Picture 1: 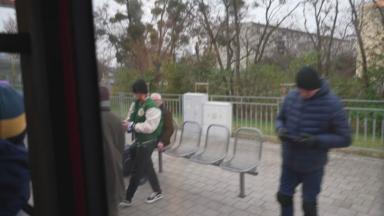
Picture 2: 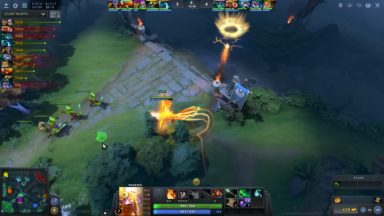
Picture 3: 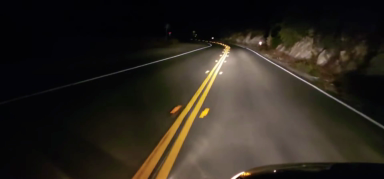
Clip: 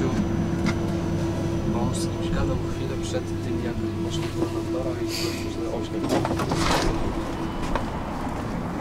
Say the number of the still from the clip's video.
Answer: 1